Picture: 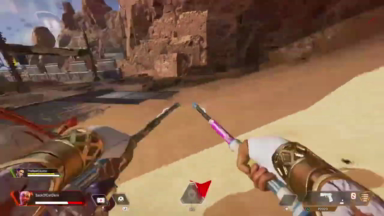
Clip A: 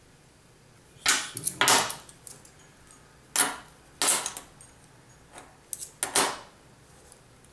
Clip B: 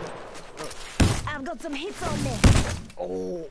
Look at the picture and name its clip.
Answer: B